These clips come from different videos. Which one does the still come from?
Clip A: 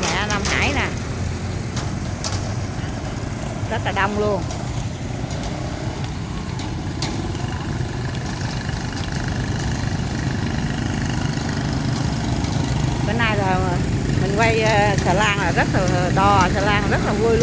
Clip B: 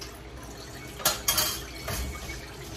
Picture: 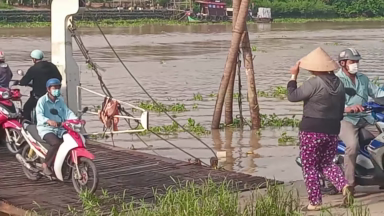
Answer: A